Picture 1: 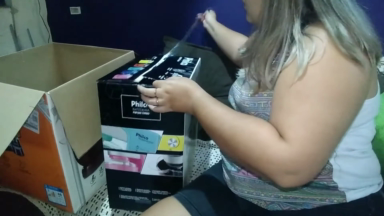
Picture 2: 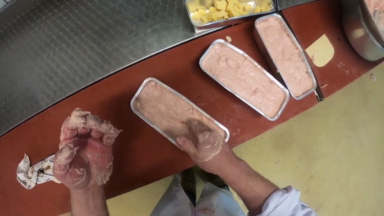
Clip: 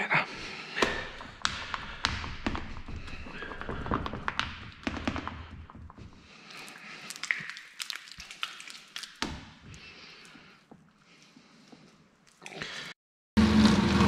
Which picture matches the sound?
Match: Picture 2